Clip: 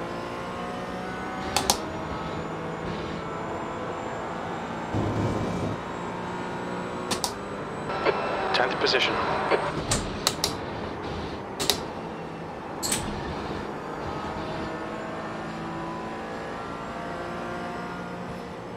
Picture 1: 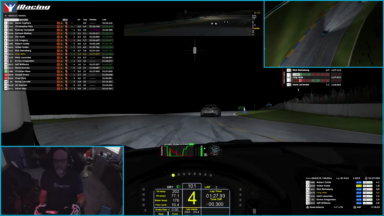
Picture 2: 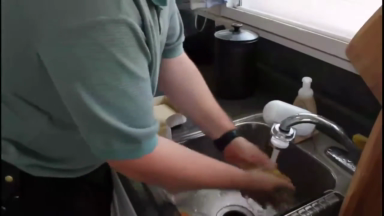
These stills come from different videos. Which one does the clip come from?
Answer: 1